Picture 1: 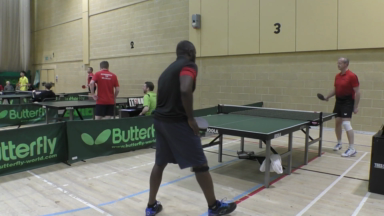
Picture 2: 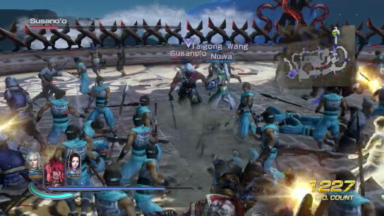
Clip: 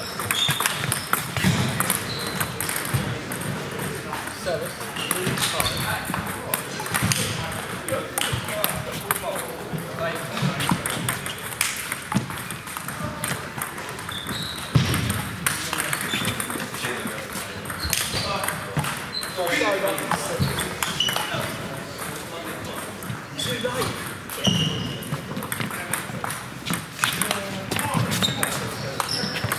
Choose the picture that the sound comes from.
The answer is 1